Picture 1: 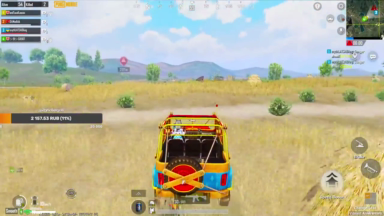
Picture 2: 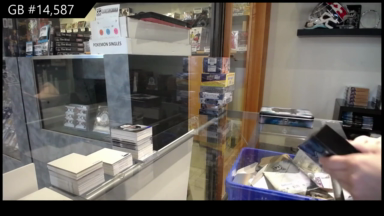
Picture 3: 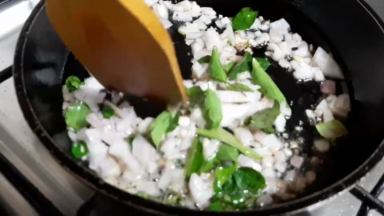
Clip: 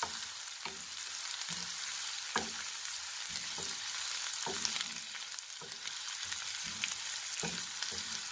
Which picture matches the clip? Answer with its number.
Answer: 3